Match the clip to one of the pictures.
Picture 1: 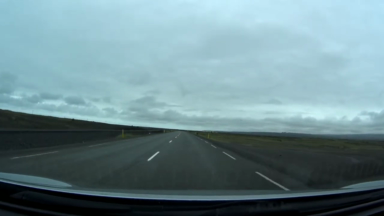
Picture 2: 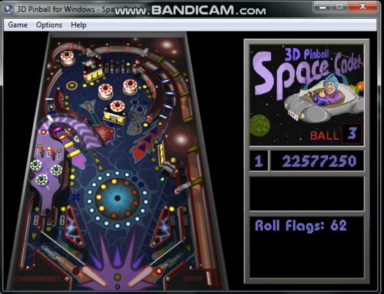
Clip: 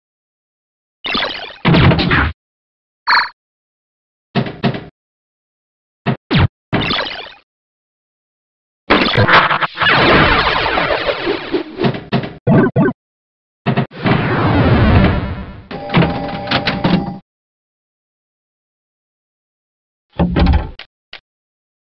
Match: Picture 2